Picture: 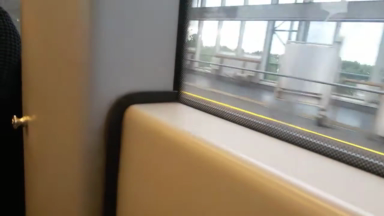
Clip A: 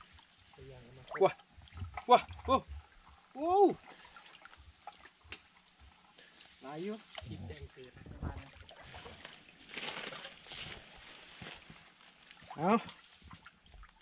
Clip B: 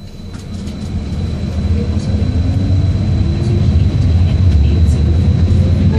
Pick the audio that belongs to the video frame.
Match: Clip B